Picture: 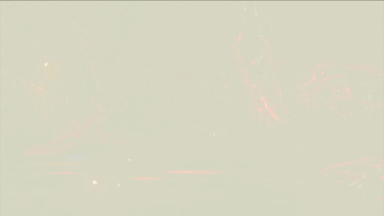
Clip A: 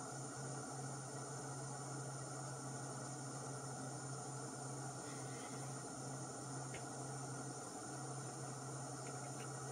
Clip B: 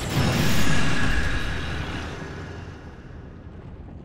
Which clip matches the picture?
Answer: B